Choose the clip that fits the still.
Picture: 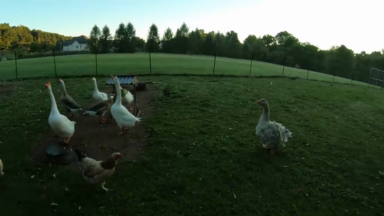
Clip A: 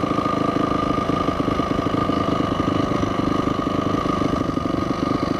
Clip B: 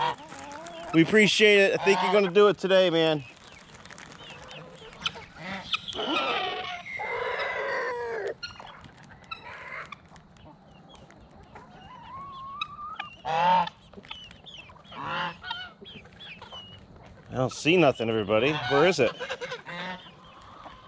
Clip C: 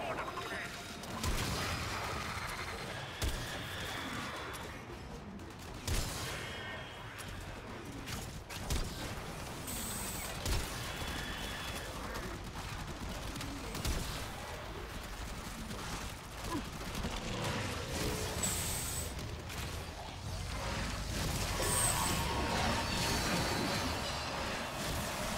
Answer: B